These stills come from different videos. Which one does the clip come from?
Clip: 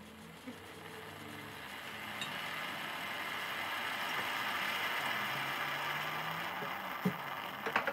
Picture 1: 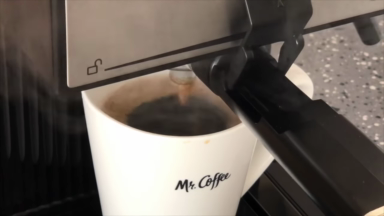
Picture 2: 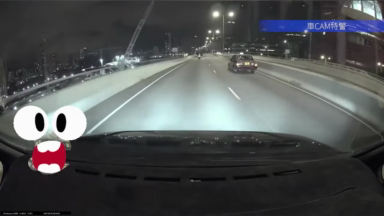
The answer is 1